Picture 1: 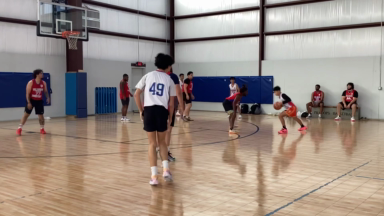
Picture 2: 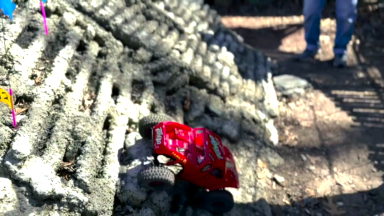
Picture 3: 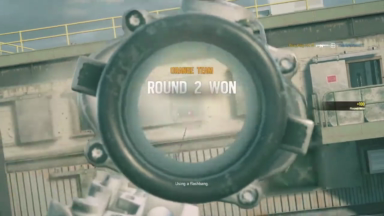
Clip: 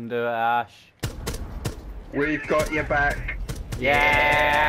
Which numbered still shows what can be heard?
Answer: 3